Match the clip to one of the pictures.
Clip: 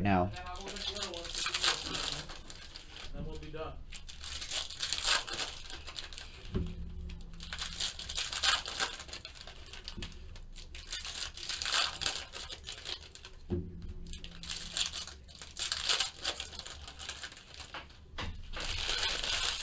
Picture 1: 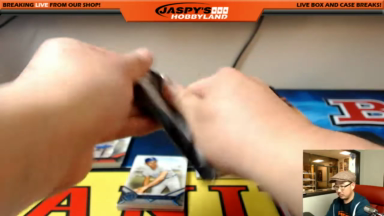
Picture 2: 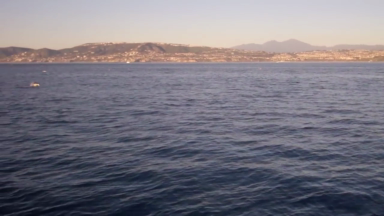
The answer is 1